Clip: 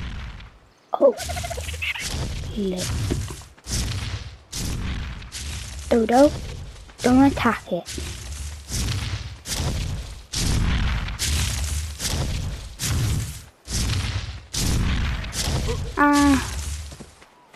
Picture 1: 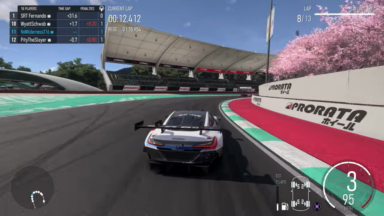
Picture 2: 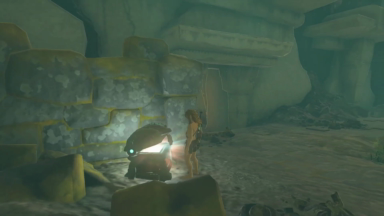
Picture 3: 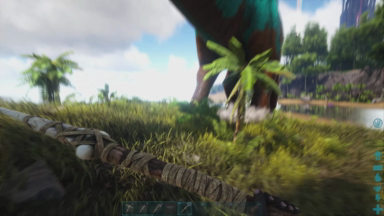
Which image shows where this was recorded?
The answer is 3